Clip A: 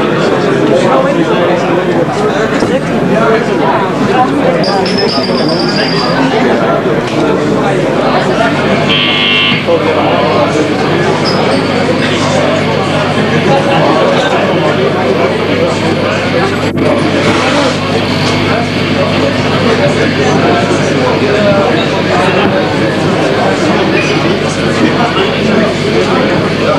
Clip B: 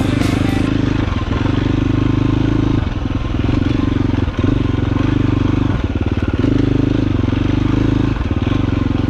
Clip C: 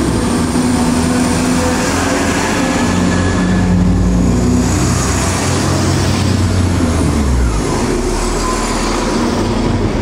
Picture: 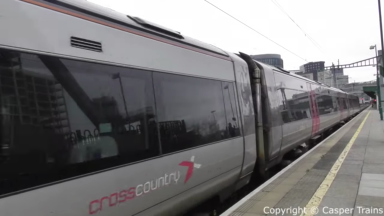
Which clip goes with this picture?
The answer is C